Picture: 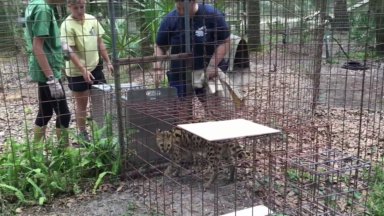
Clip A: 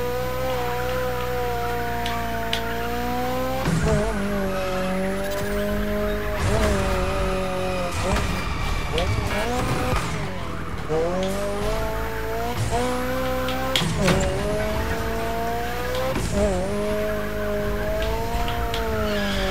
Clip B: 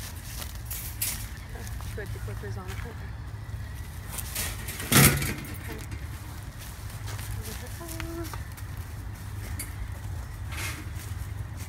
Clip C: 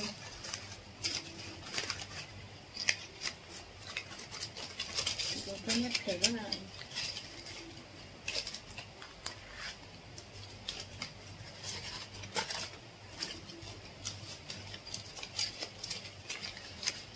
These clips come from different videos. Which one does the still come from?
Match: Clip B